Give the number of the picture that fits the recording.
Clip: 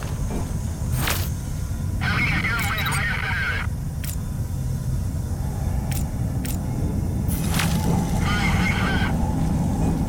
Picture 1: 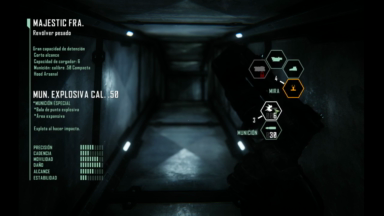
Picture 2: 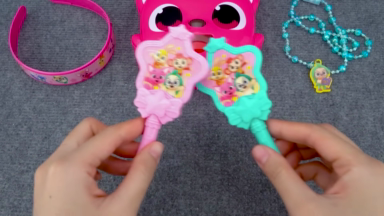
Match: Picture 1